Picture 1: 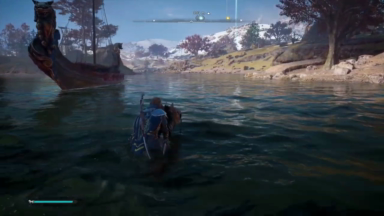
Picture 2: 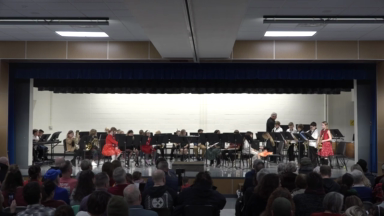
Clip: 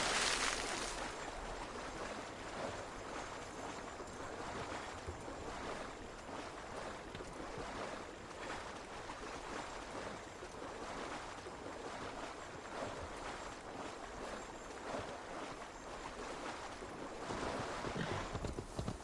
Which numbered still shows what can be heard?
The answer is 1